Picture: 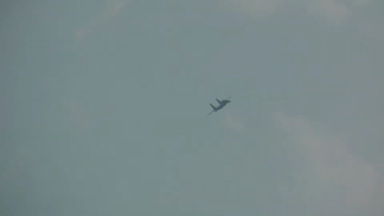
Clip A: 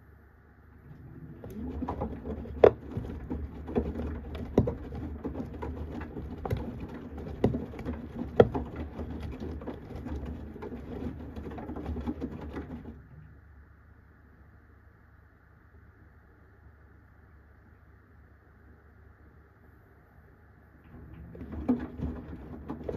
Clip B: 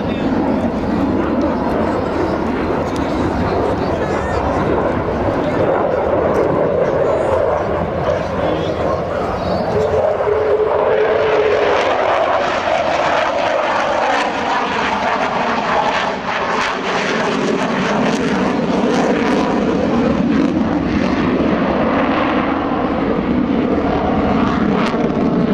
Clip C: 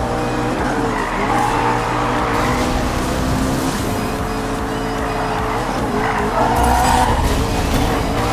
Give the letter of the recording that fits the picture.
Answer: B